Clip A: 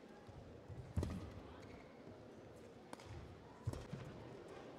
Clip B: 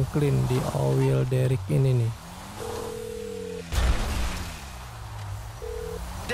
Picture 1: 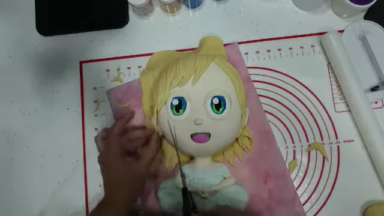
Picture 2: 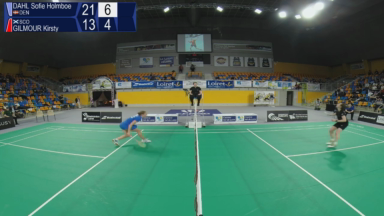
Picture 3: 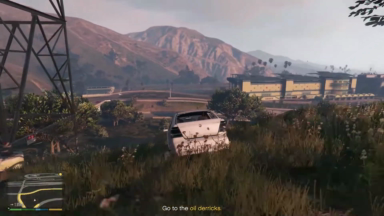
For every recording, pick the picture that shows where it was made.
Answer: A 2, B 3